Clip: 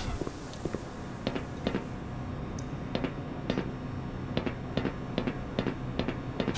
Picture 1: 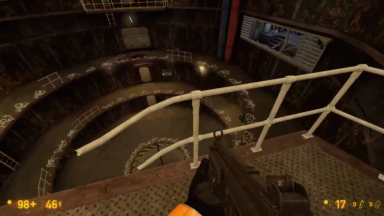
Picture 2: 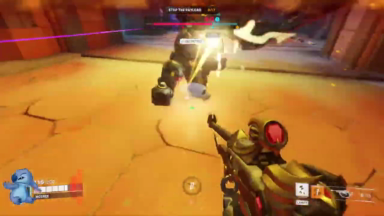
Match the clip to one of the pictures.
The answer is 1